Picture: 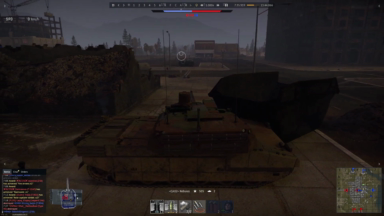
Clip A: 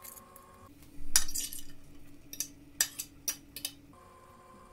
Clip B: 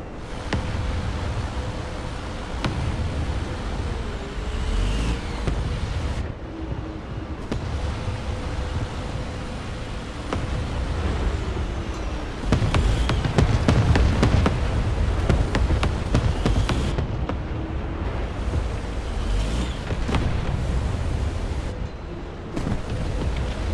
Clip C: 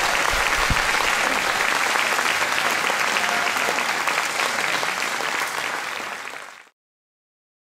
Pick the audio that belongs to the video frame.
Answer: B